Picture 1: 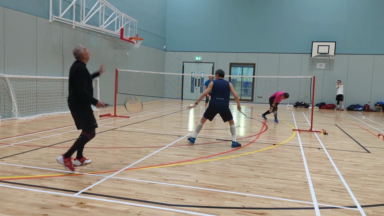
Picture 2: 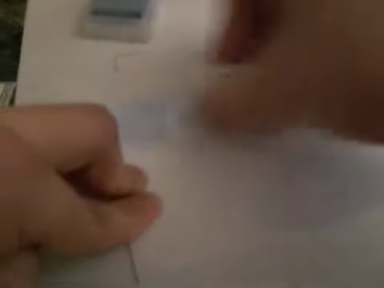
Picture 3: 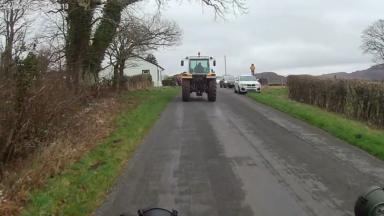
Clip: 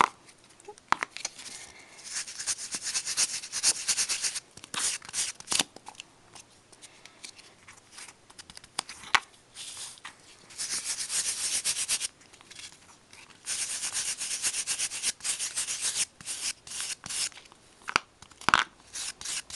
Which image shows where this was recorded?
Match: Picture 2